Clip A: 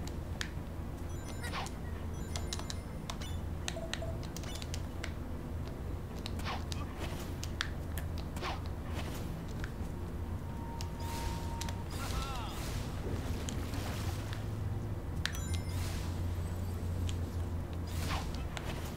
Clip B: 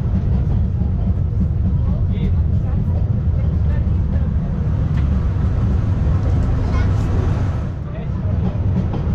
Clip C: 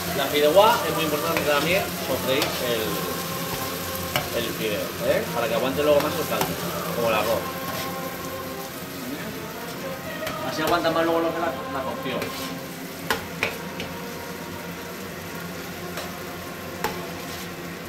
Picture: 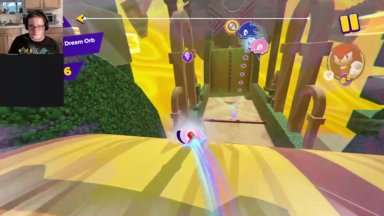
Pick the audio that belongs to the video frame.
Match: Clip A